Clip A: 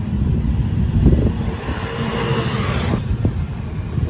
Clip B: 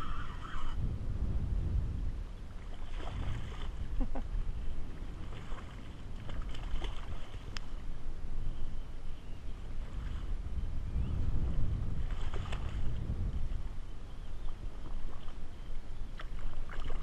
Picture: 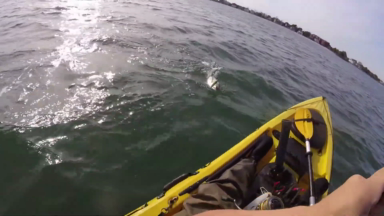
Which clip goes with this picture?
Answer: B